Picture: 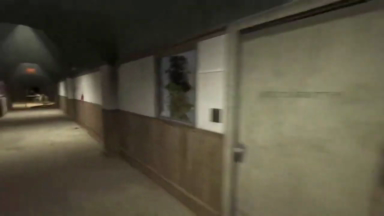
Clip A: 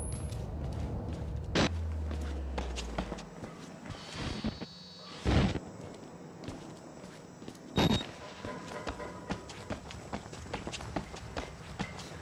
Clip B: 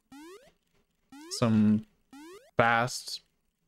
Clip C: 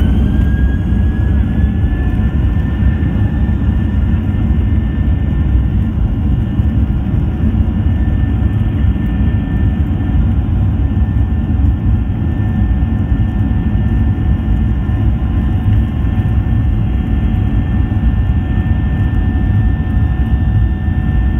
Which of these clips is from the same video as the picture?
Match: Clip A